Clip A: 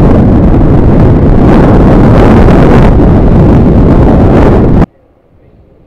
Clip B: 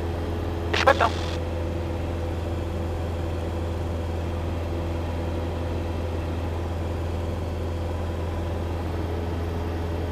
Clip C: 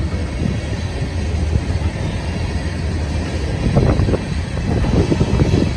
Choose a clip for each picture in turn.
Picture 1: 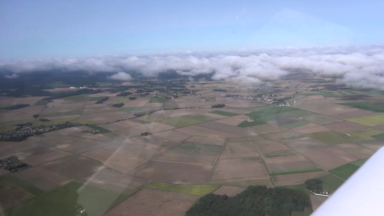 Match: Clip B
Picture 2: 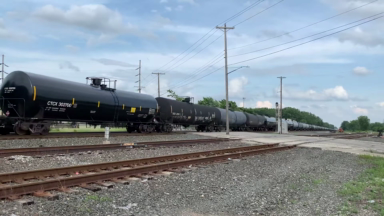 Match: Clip C